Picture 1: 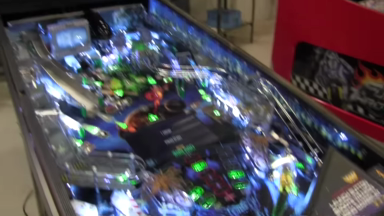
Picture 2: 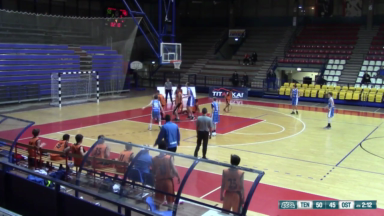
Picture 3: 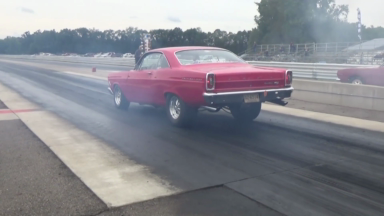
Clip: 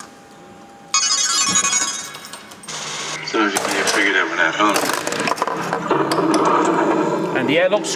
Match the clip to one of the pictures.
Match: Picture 1